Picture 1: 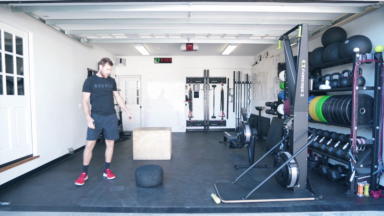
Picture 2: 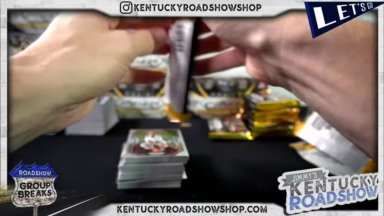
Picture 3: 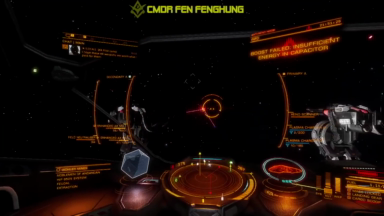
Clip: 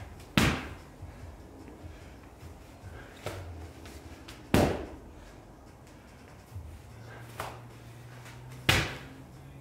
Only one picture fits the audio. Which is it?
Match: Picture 1